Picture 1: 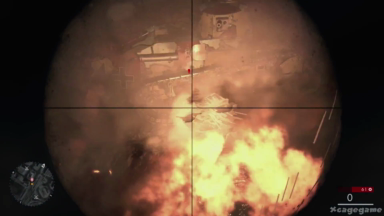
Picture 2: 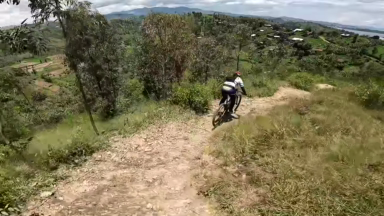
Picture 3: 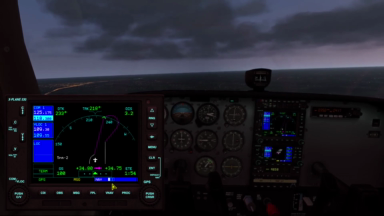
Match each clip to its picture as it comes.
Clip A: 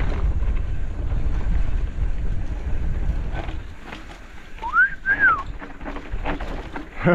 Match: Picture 2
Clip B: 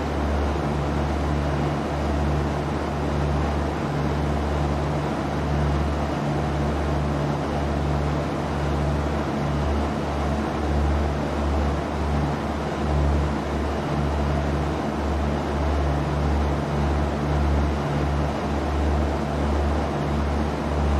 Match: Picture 3